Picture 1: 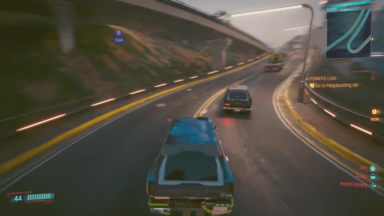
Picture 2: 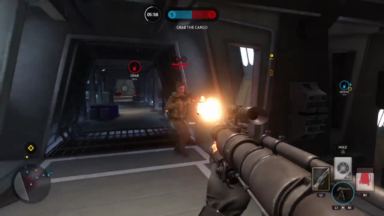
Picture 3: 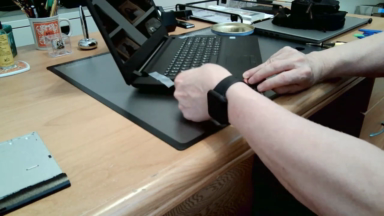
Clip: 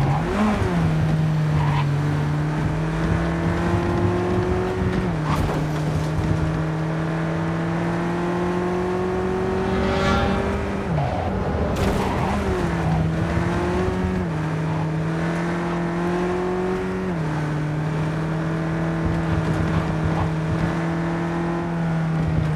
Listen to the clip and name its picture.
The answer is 1